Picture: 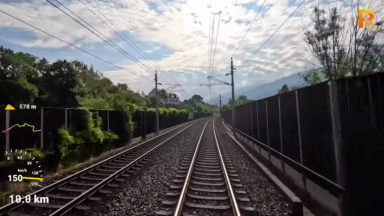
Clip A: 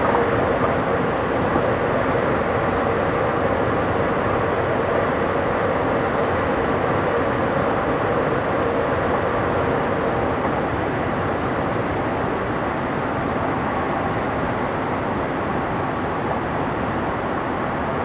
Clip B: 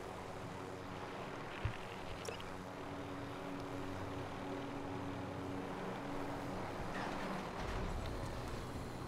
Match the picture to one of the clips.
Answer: A